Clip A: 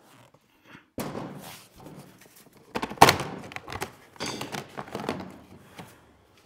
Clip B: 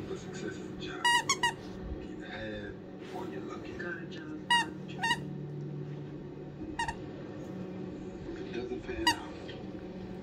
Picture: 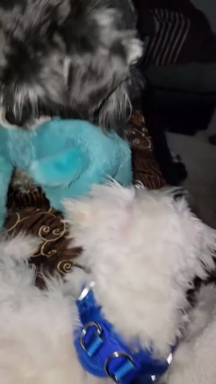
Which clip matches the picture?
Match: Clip B